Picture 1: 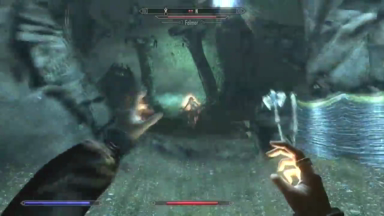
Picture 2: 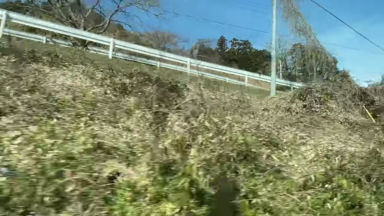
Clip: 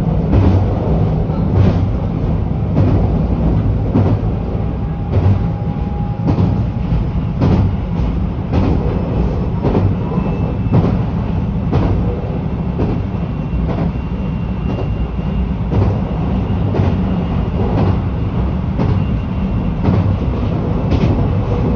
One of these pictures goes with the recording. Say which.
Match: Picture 2